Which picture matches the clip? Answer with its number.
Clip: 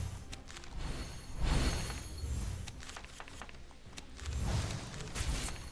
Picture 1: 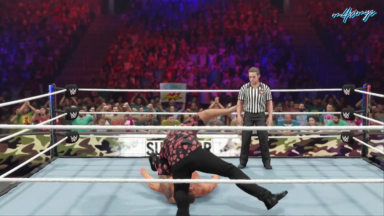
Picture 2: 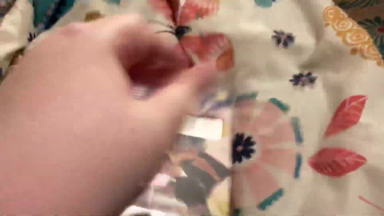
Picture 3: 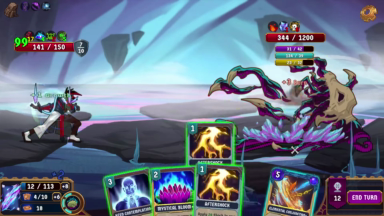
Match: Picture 3